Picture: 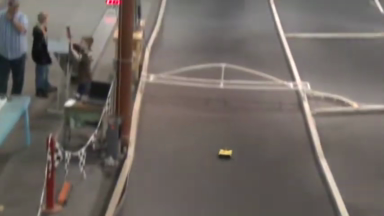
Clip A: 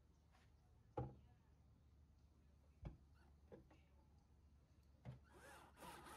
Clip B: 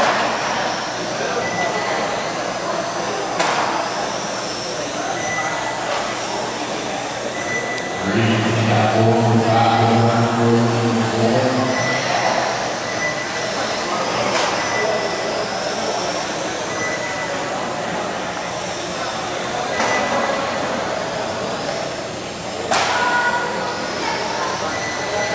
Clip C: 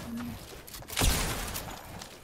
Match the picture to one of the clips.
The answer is B